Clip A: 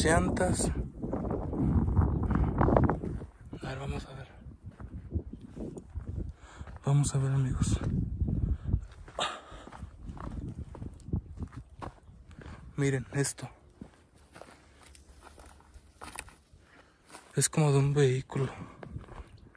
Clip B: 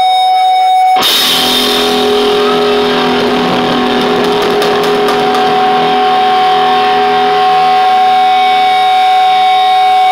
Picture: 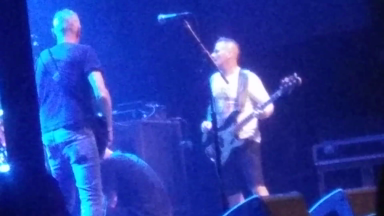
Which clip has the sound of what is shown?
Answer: B